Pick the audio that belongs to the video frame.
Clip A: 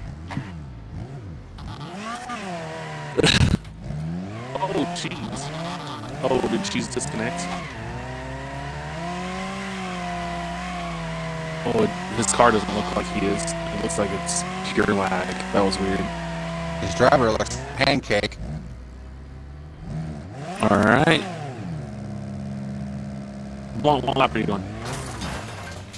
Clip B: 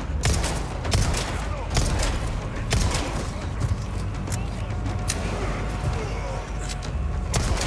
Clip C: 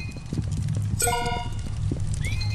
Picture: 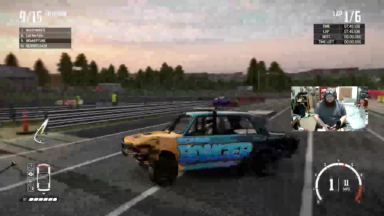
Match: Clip A